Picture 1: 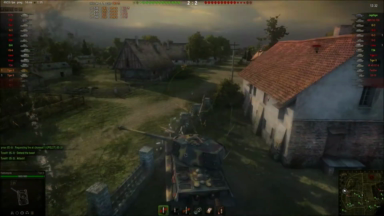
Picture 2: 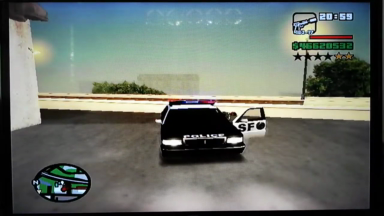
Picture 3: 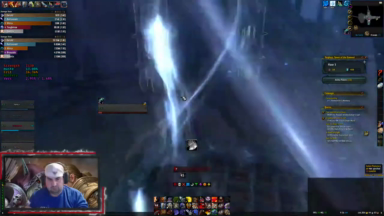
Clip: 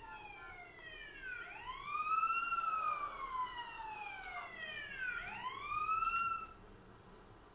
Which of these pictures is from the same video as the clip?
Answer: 2